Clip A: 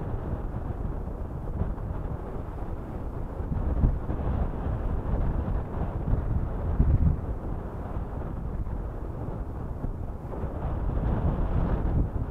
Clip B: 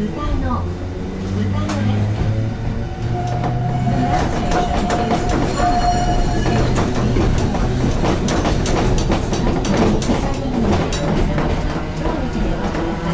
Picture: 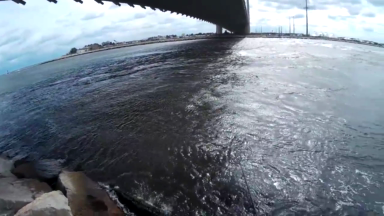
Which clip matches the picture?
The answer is A